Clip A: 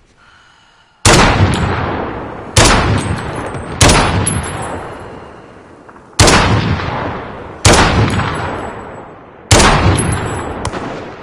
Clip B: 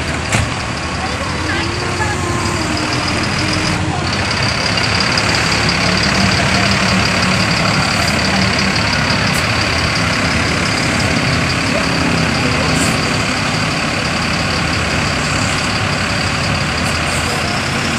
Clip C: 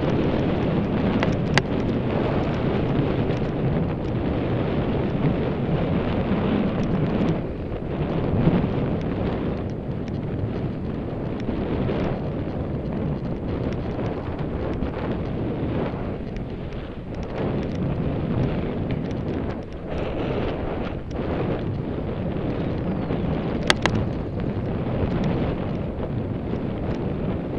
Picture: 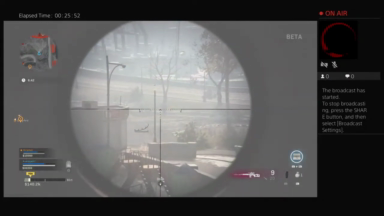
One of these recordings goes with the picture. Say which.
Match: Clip A